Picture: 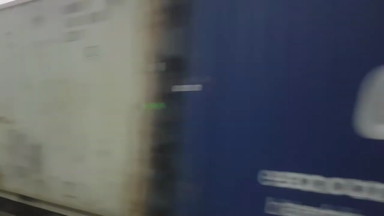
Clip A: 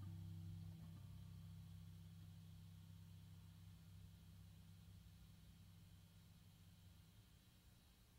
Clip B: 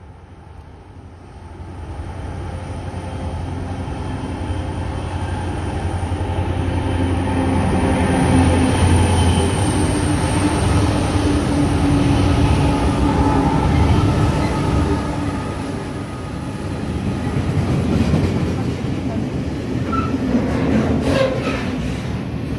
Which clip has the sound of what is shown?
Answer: B